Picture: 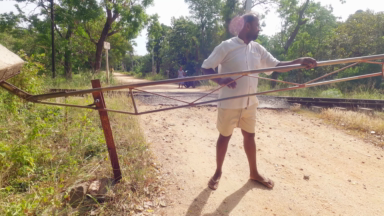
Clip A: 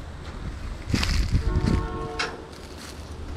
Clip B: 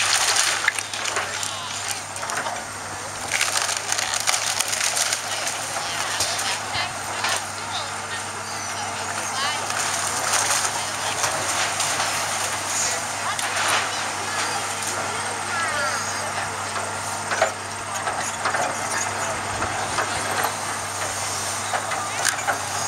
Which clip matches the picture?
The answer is A